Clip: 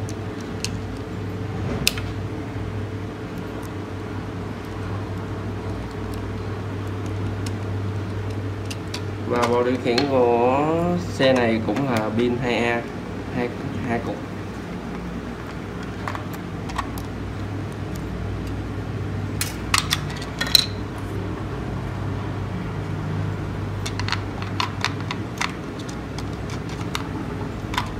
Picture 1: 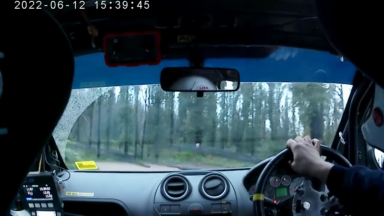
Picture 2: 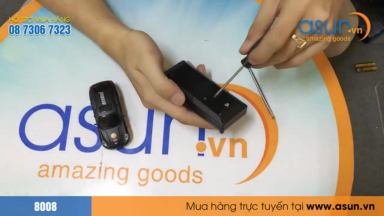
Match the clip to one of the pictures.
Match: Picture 2